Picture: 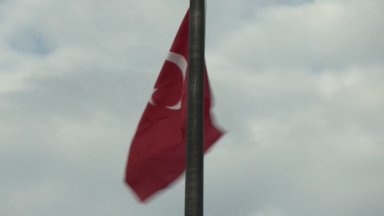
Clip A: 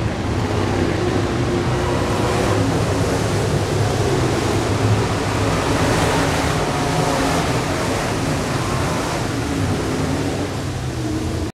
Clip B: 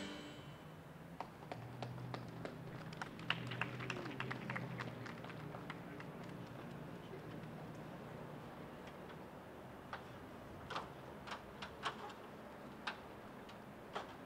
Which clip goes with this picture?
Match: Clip B